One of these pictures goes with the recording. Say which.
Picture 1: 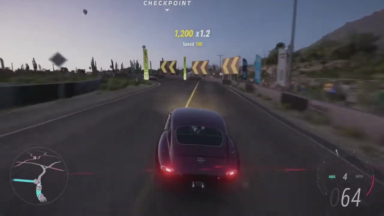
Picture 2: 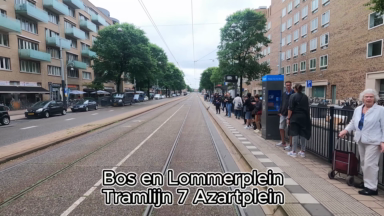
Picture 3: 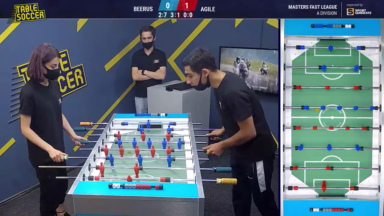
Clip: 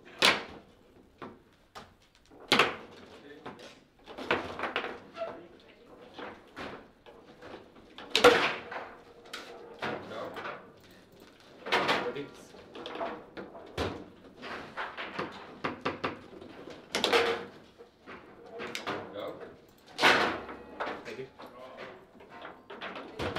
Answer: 3